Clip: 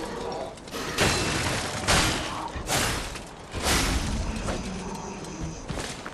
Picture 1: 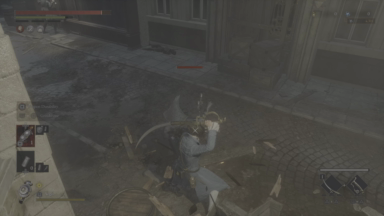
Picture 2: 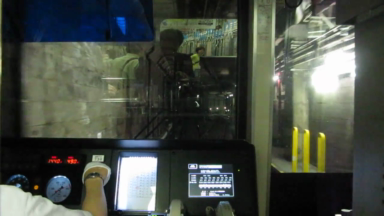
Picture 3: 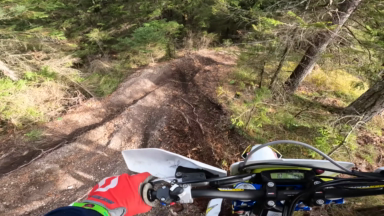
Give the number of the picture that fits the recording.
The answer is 1